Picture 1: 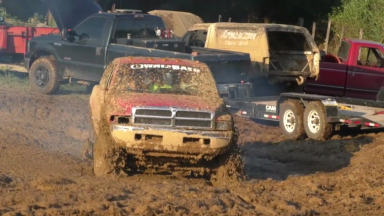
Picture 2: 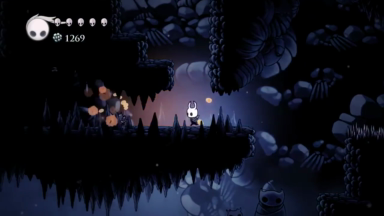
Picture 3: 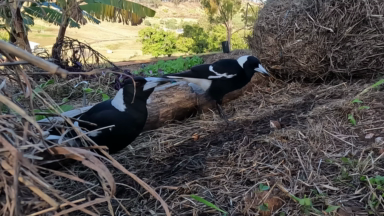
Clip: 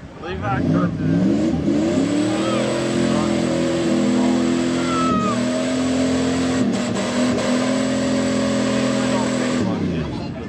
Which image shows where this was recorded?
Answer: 1